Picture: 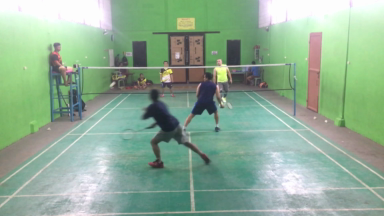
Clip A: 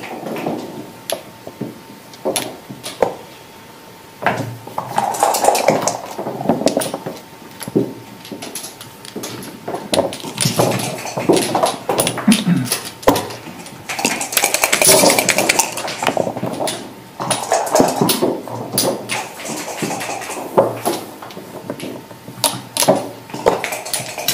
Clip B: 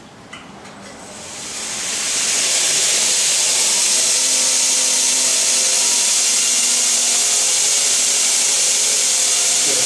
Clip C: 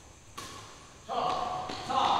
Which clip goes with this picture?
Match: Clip C